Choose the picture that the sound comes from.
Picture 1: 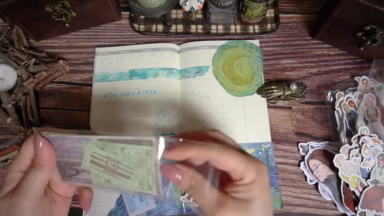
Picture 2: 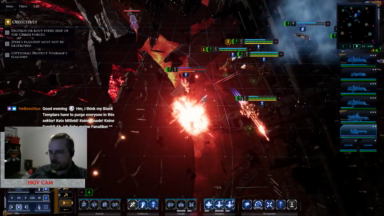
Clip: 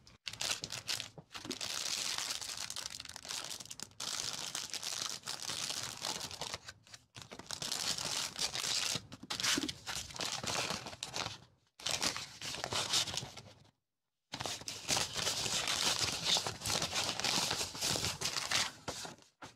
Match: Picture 1